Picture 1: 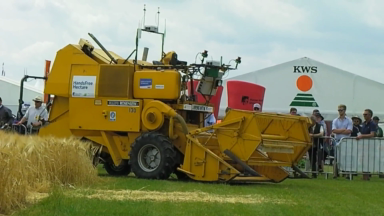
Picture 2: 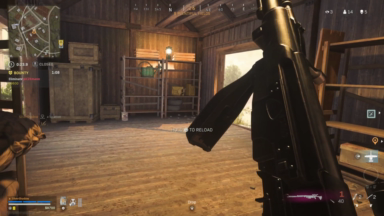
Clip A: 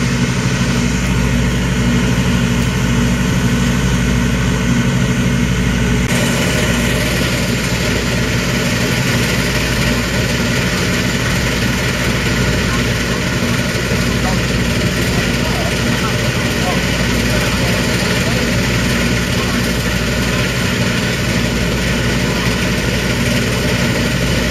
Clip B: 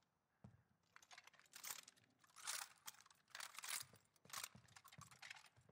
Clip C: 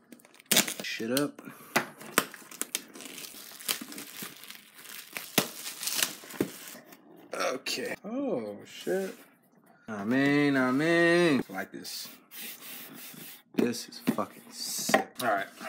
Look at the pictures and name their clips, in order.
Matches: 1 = A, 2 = B